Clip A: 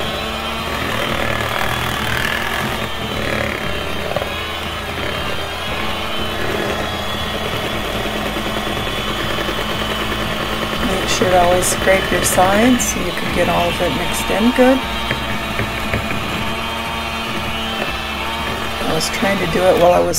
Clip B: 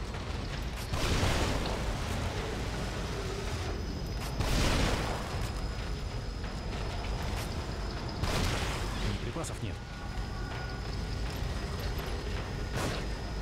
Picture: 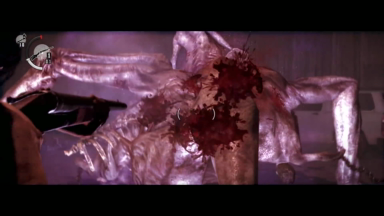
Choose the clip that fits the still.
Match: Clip B